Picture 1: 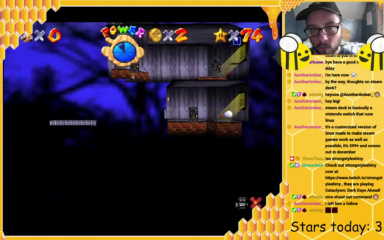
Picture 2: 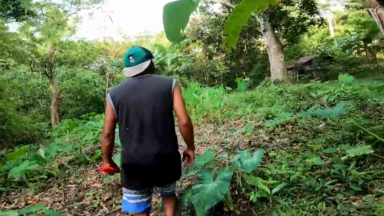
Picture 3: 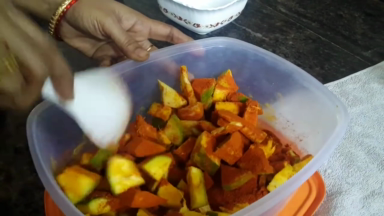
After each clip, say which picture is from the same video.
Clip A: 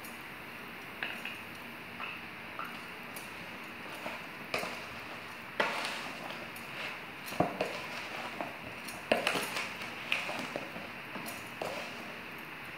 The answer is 3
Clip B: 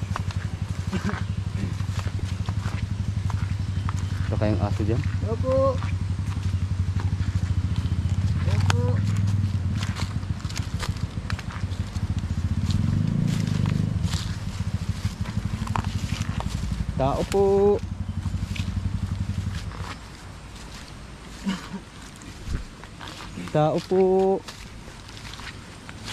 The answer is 2